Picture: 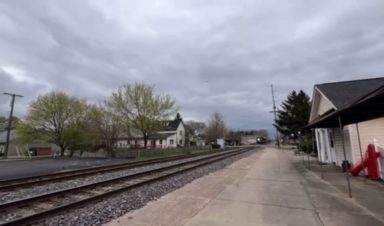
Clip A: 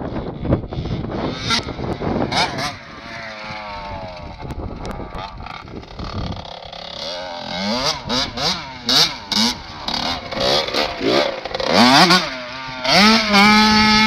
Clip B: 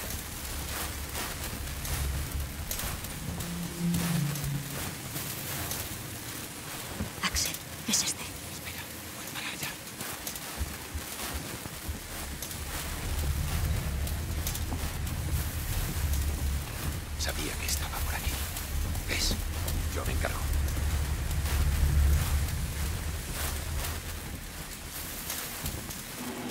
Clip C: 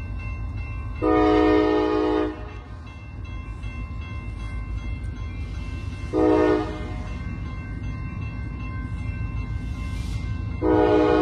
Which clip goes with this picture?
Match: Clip C